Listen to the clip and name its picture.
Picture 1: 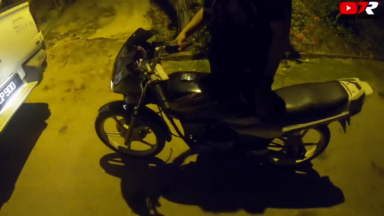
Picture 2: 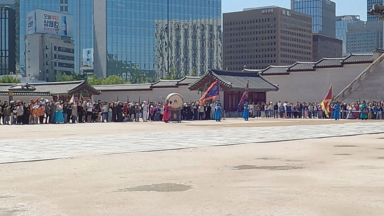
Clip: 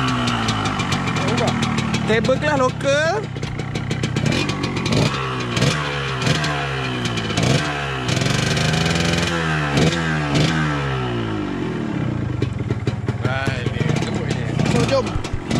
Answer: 1